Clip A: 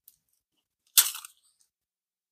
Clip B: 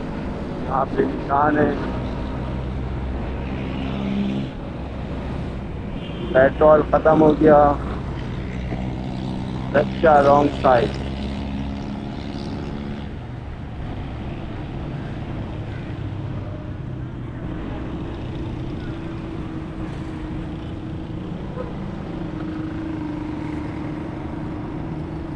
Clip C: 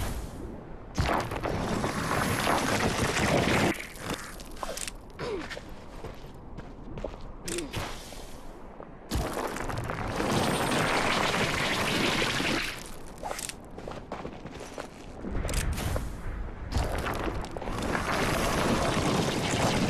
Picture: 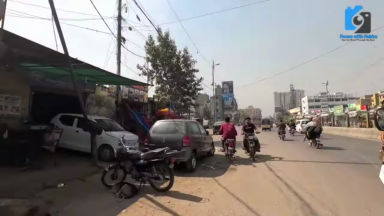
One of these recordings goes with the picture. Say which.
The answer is B